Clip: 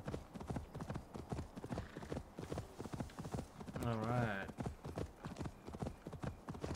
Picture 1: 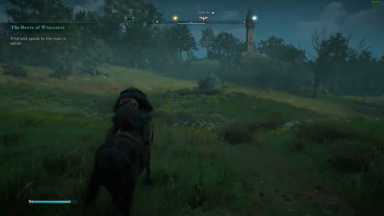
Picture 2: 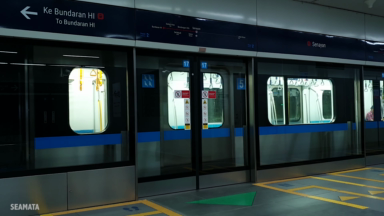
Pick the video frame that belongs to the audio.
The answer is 1